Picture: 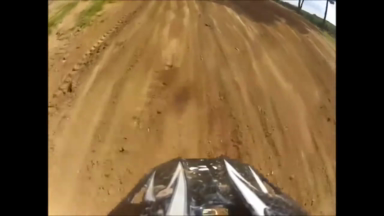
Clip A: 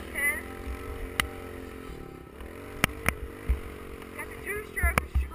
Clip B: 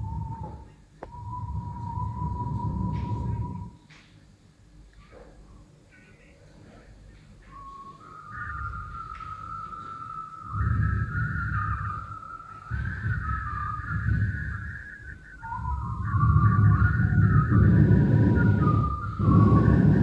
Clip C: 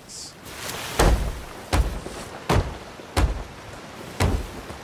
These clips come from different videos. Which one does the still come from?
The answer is A